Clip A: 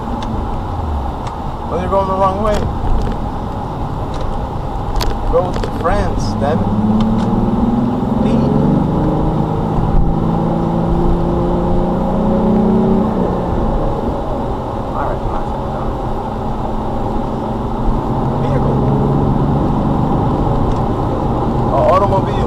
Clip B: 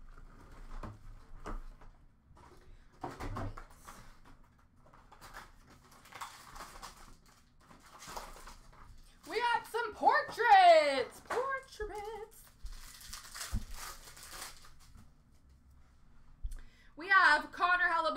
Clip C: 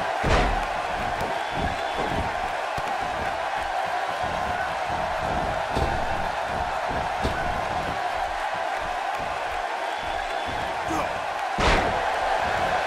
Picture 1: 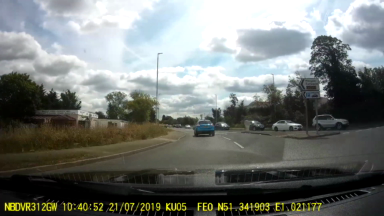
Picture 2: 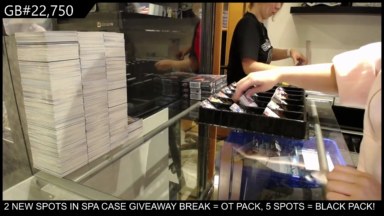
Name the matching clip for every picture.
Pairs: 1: A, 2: B